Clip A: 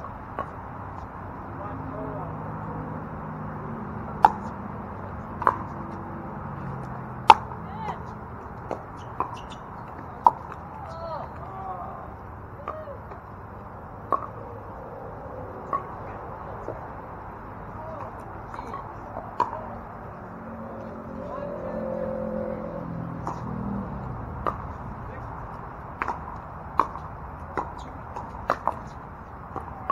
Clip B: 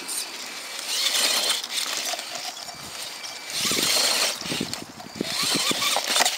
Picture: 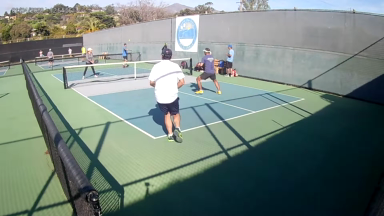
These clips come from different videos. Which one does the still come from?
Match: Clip A